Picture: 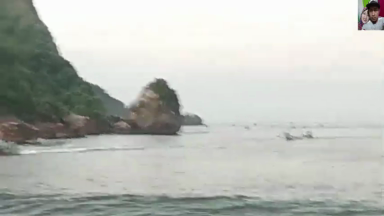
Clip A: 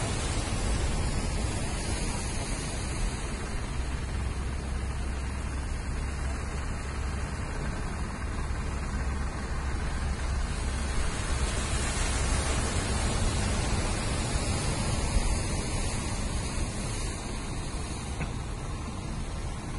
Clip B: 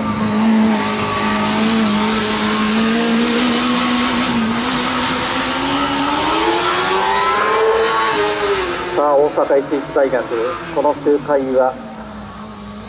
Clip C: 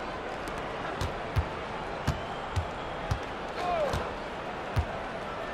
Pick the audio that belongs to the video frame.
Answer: A